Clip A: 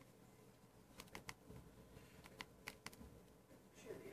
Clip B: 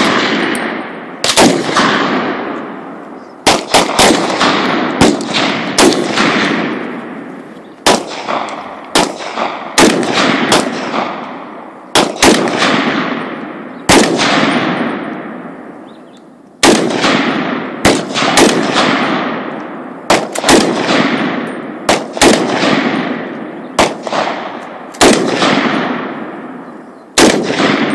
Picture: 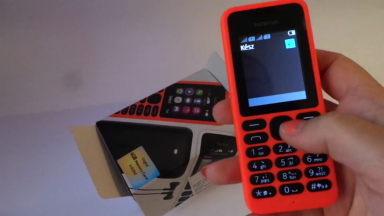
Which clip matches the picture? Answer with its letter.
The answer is A